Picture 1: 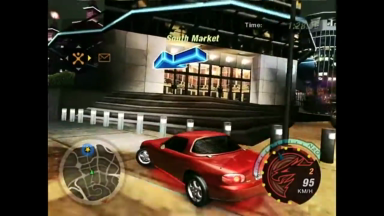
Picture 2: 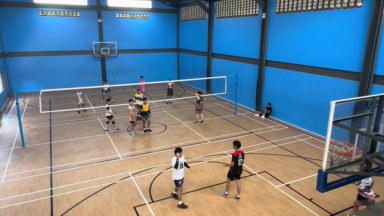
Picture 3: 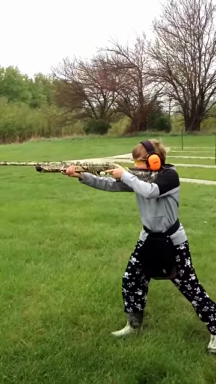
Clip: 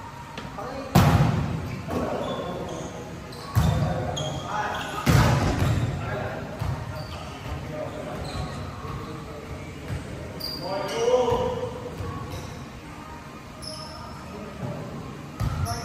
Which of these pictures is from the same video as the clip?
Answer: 2